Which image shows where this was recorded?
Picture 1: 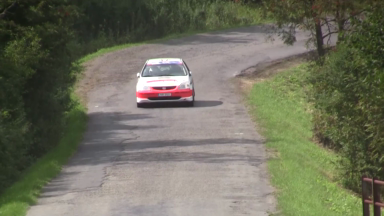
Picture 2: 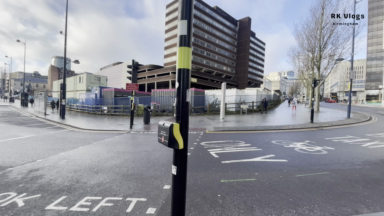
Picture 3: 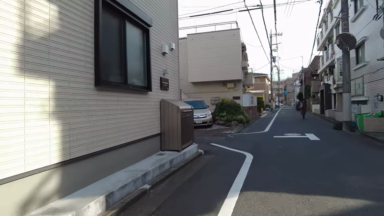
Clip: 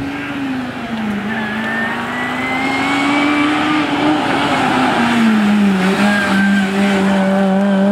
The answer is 1